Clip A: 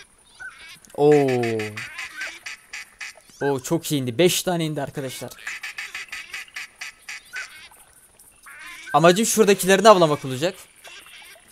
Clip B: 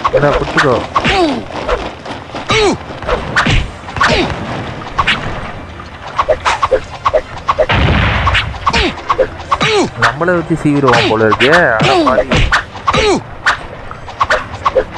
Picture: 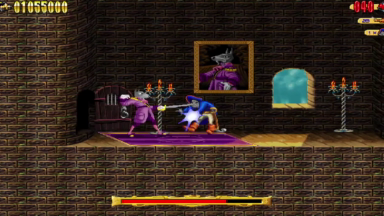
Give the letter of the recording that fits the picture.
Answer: B